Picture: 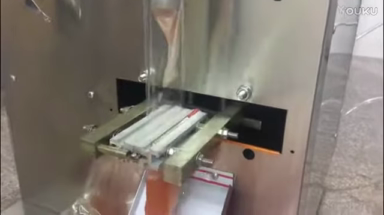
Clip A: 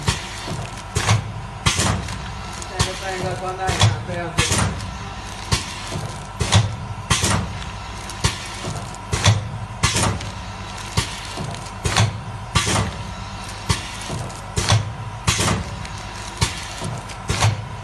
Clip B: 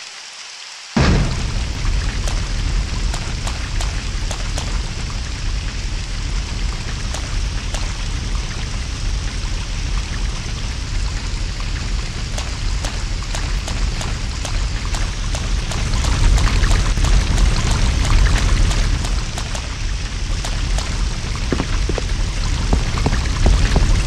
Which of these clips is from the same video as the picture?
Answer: A